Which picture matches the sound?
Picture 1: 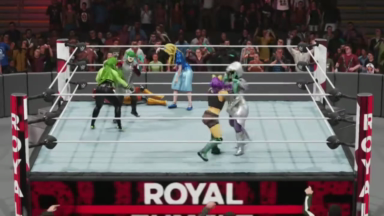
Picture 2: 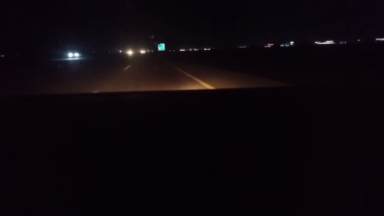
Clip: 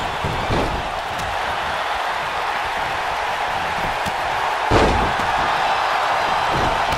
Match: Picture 1